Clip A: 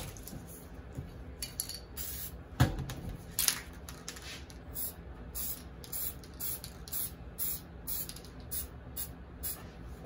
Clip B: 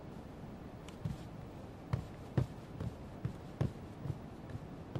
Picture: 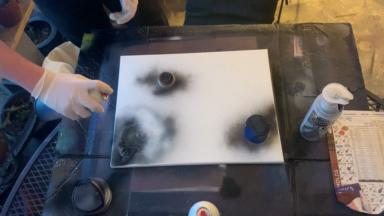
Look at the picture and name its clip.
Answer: A